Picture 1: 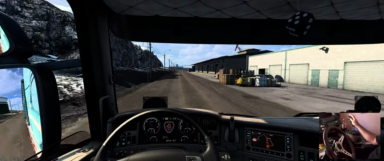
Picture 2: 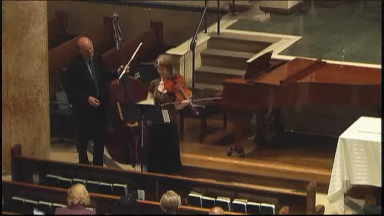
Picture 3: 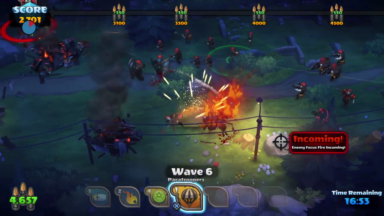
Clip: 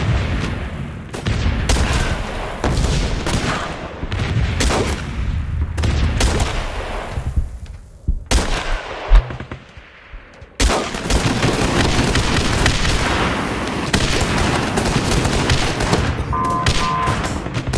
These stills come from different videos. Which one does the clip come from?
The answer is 3